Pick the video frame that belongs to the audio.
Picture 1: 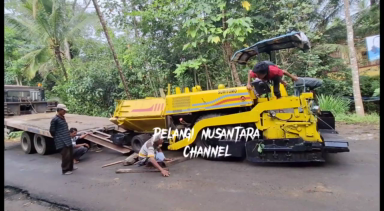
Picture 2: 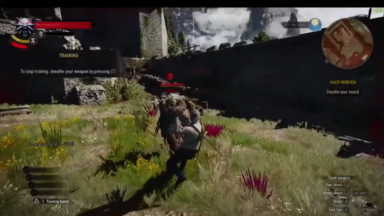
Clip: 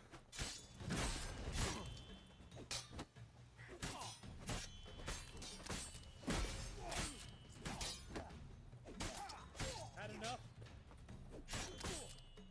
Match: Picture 2